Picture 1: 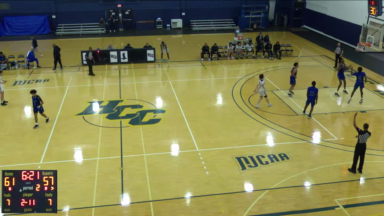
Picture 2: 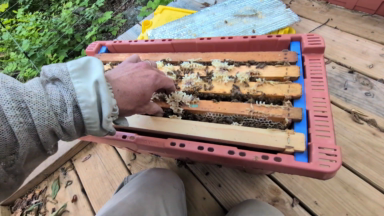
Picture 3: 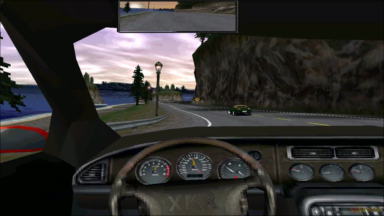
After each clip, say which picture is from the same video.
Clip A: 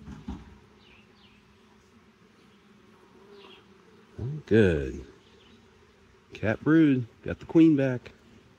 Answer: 2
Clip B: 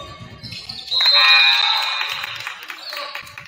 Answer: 1